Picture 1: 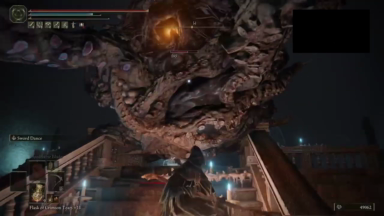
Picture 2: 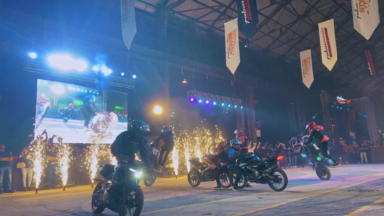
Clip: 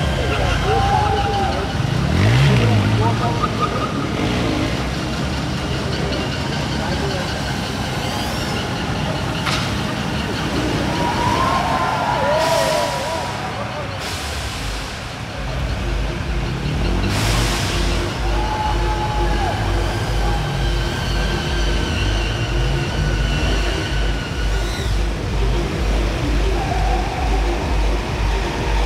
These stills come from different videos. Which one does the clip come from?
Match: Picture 2